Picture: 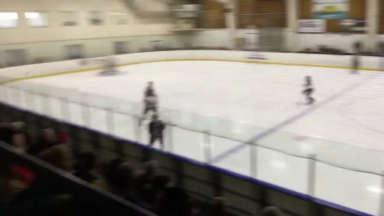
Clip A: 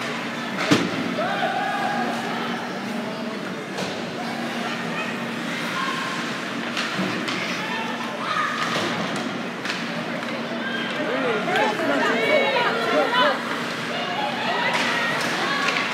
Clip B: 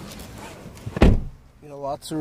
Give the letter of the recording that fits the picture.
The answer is A